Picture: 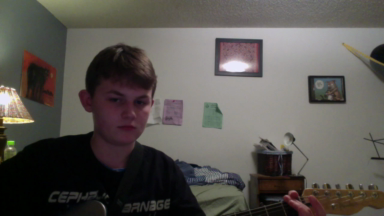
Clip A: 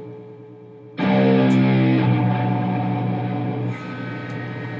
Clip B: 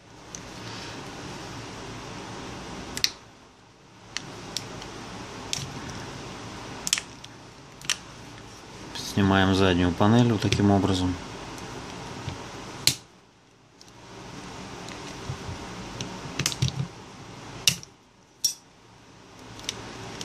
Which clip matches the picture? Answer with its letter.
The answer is A